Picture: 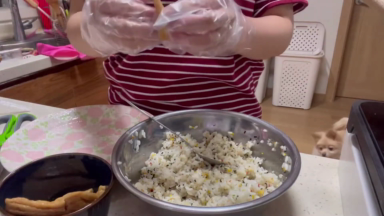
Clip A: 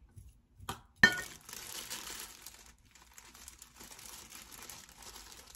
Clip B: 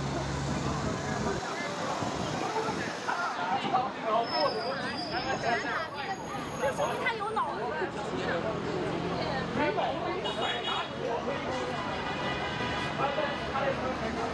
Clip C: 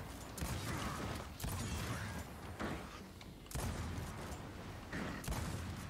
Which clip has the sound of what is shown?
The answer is A